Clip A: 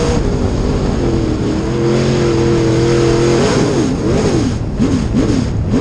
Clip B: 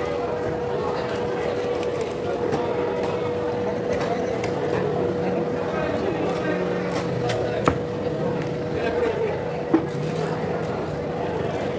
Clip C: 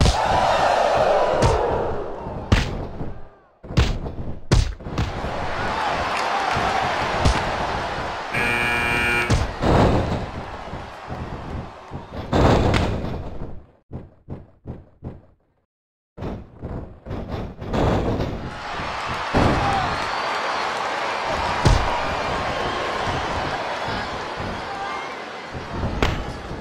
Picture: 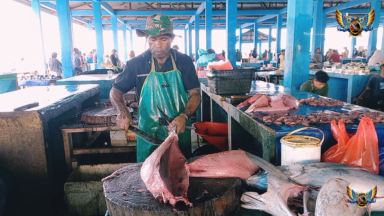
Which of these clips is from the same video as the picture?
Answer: B